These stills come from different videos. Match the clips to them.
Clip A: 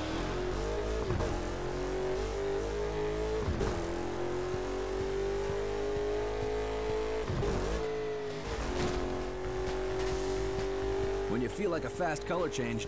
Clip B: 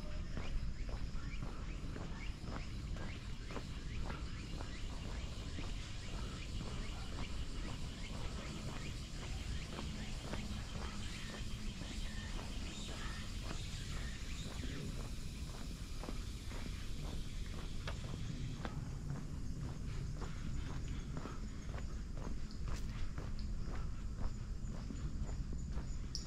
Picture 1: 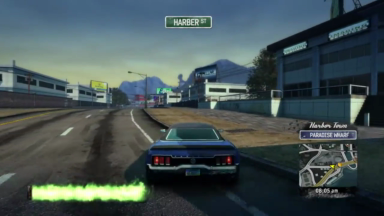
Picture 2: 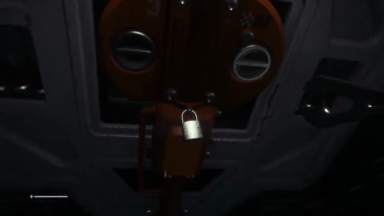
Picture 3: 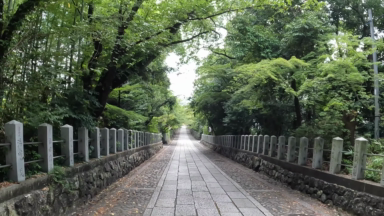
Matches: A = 1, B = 3